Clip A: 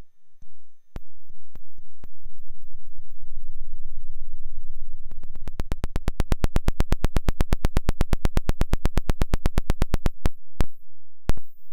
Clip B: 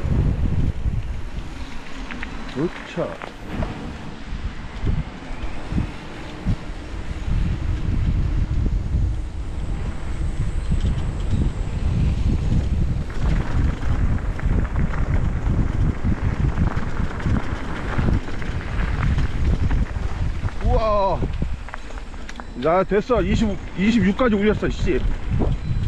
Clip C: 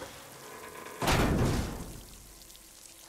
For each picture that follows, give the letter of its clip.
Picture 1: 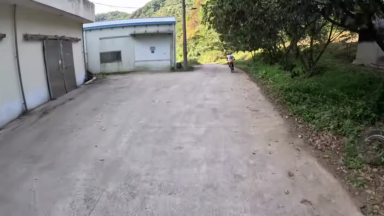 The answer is B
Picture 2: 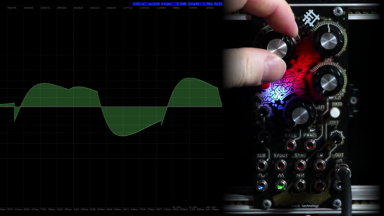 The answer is A